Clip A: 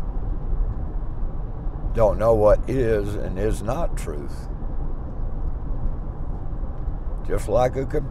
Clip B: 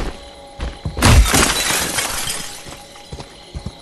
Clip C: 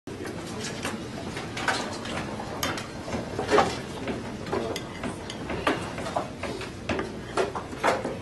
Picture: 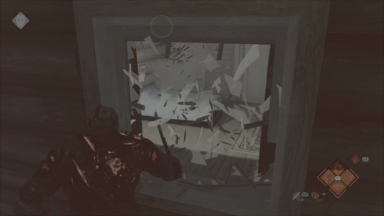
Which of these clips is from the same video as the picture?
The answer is B